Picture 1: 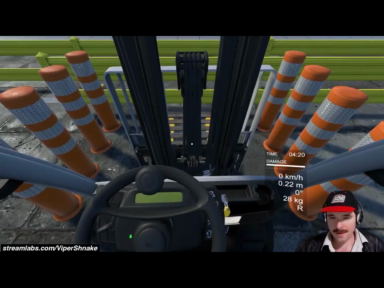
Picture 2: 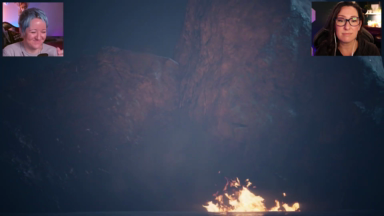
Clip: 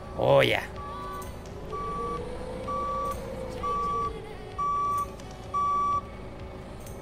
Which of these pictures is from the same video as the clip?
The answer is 1